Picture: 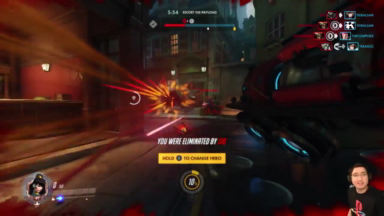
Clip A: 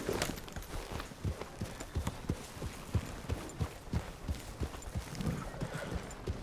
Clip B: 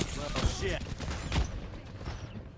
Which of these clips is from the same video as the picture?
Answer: B